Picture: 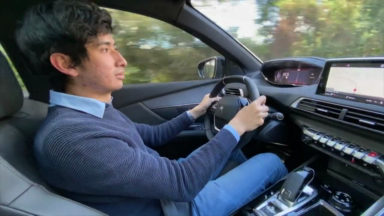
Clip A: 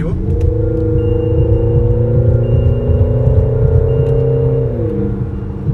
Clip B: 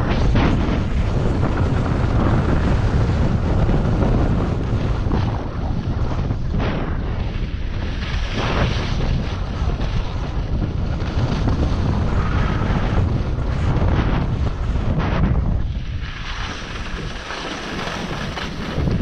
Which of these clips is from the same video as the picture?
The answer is A